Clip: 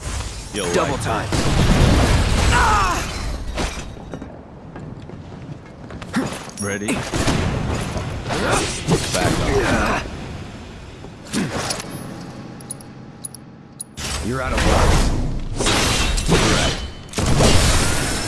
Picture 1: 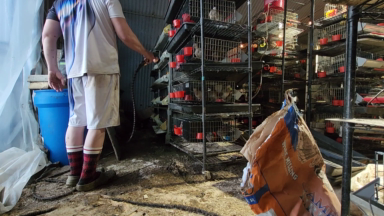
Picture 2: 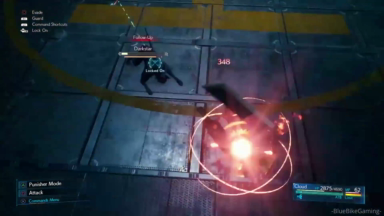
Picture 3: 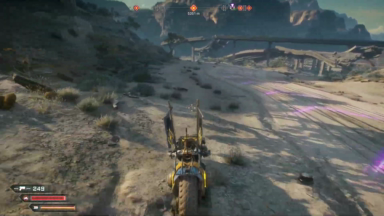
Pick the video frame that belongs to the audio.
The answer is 2